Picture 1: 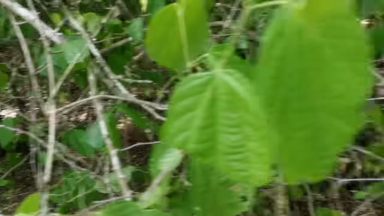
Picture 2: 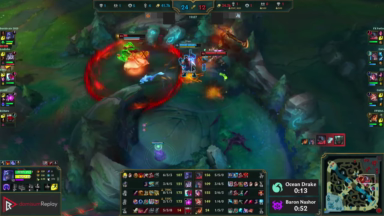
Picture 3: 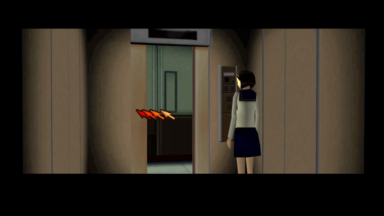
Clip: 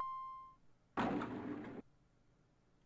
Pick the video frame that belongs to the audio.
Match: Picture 3